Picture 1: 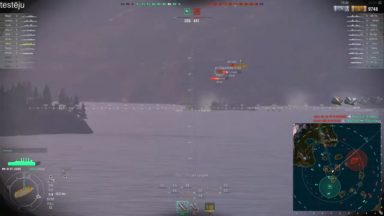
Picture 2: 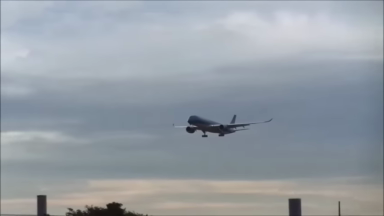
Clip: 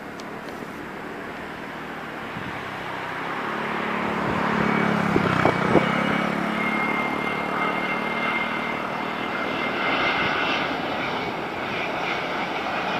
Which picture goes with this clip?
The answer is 2